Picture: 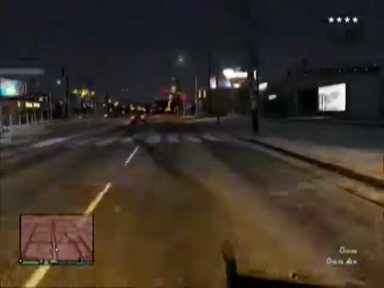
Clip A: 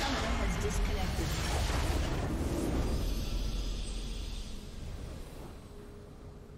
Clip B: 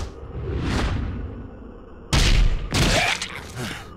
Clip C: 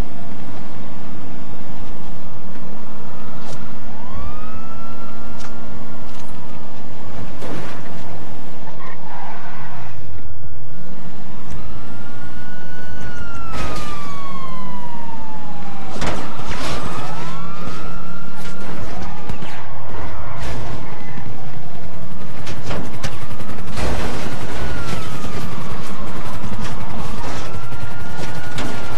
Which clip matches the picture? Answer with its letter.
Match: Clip C